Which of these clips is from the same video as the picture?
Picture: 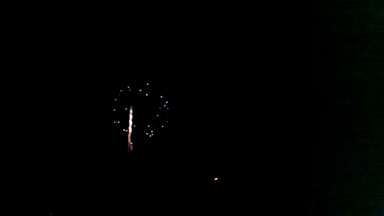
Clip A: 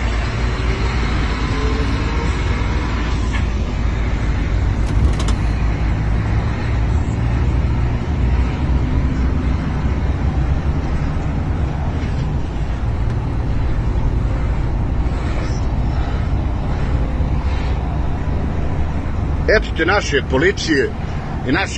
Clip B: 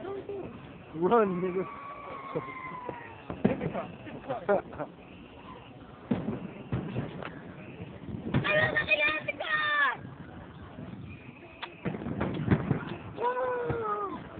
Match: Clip B